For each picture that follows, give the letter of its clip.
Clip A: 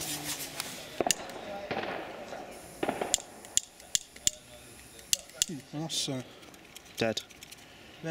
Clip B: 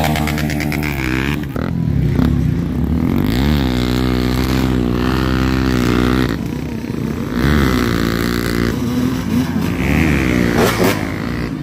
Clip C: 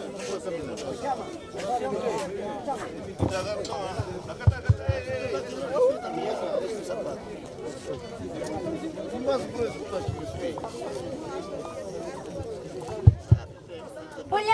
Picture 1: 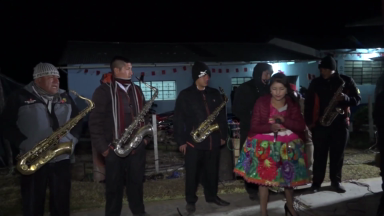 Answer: C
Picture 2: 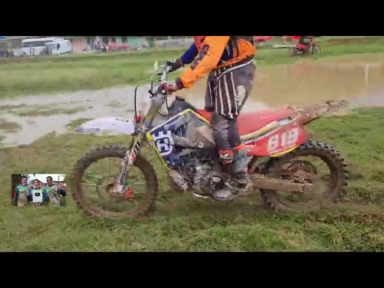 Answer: B